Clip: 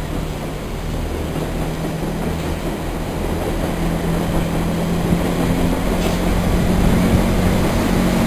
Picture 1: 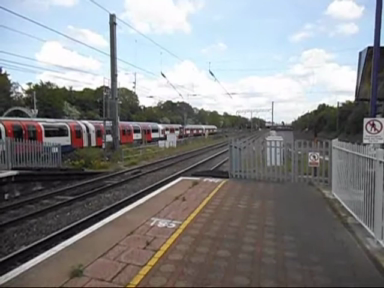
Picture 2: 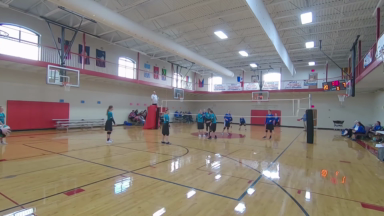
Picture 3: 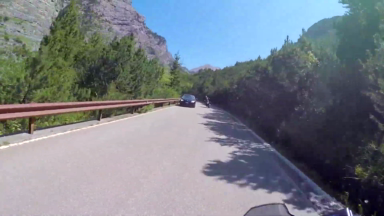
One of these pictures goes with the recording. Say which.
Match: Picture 1